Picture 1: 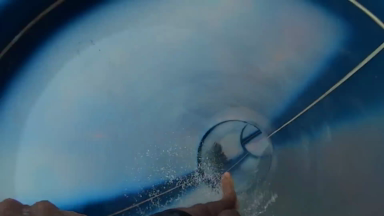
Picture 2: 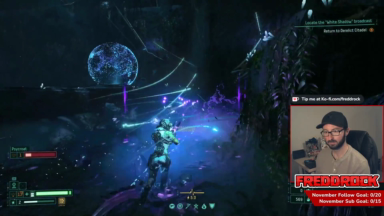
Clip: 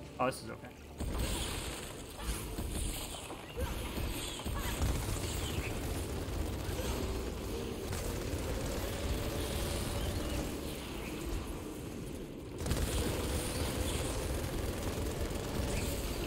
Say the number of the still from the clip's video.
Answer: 2